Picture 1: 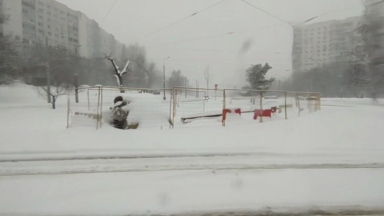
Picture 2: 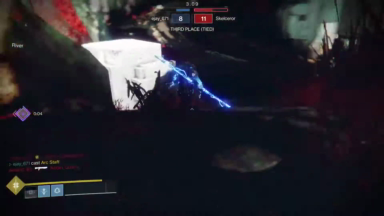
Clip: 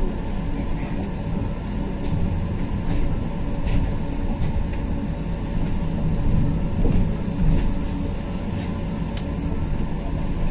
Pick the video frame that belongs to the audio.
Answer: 1